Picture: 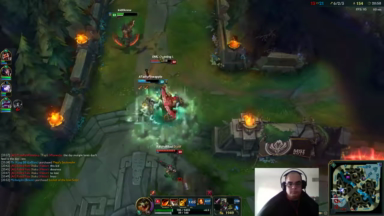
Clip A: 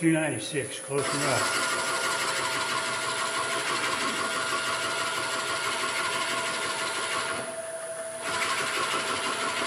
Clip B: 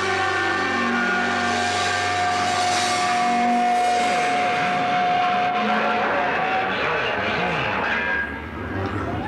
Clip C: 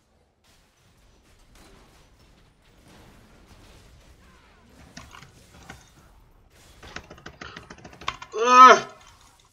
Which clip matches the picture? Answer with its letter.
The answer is C